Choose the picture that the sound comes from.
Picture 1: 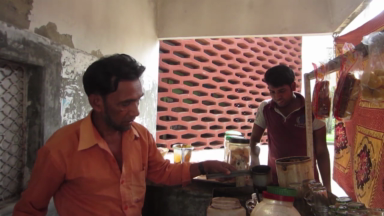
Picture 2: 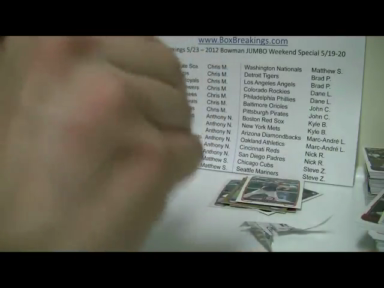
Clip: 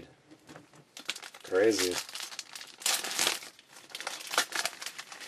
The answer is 2